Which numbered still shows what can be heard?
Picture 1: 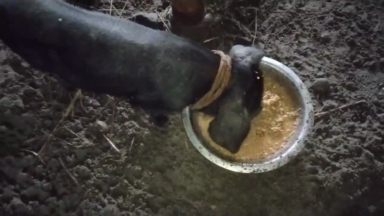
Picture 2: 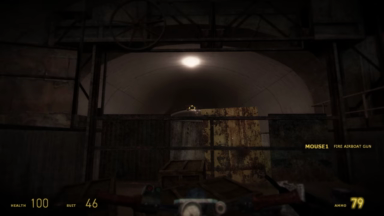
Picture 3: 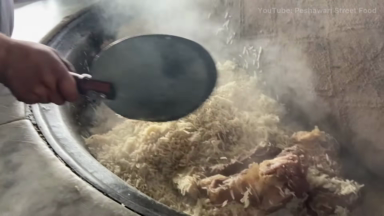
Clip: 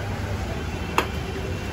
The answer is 3